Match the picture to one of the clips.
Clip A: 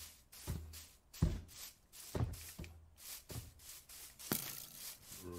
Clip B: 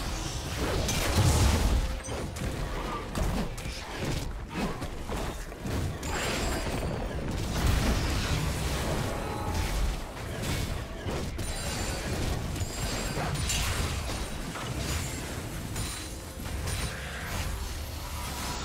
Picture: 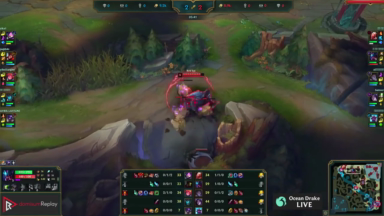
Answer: B